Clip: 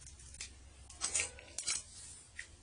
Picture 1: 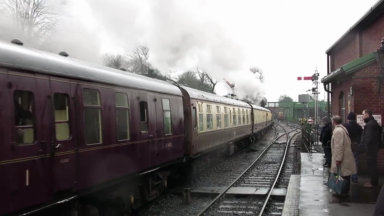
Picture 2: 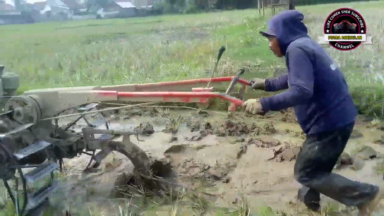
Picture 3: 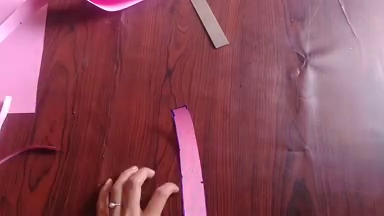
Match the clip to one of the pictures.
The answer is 3